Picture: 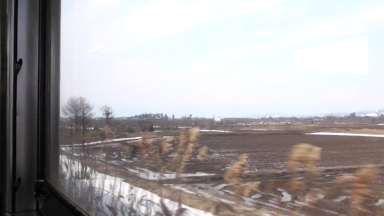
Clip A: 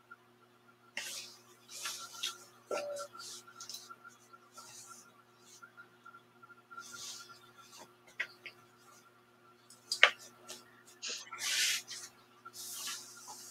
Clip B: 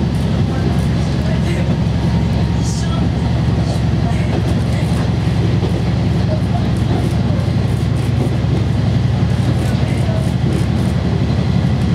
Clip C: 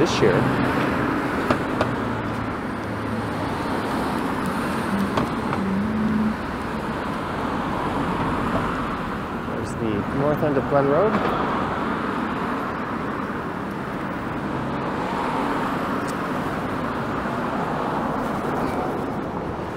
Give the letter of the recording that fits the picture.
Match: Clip B